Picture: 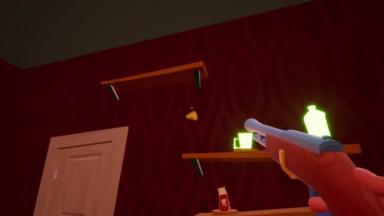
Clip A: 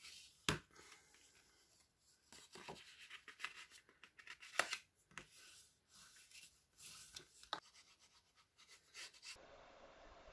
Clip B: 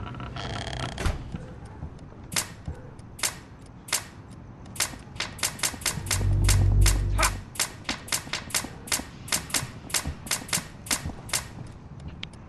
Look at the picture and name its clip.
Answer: B